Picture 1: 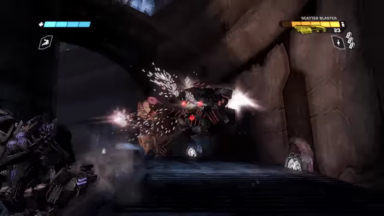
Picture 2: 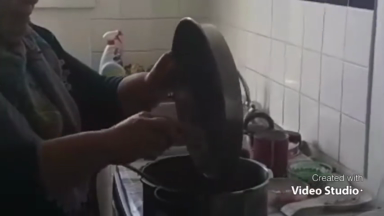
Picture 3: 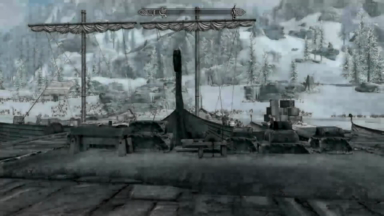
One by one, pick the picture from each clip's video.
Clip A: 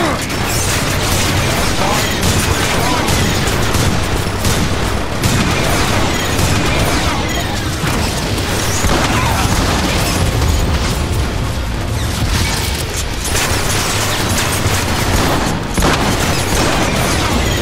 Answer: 1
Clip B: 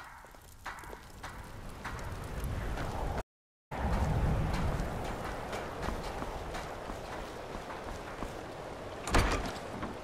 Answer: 3